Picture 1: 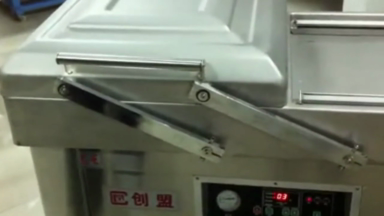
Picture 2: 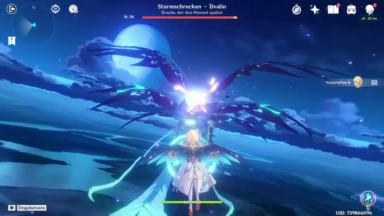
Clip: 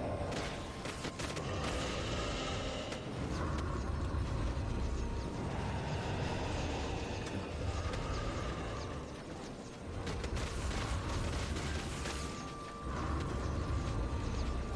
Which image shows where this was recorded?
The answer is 2